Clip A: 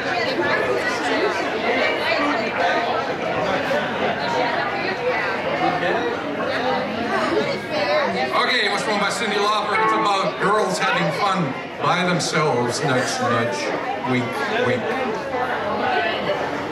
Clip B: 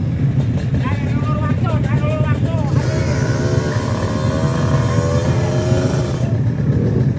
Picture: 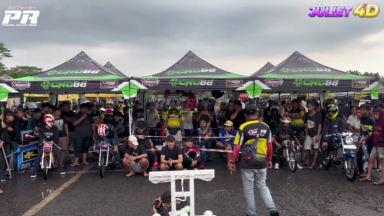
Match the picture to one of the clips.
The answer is B